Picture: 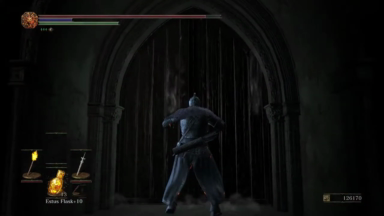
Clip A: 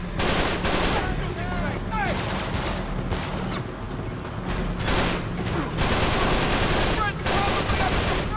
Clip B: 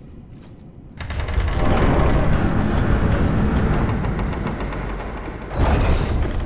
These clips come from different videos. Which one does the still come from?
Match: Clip B